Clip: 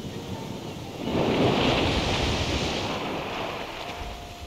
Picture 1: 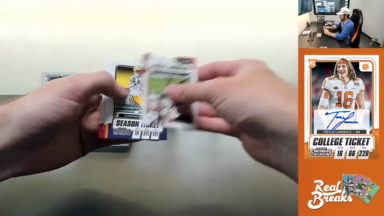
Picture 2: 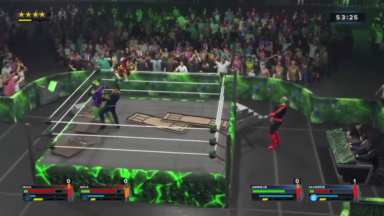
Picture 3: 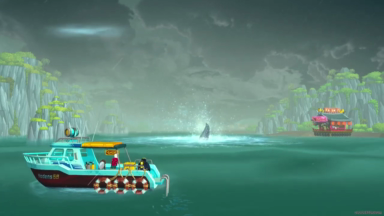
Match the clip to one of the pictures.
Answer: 3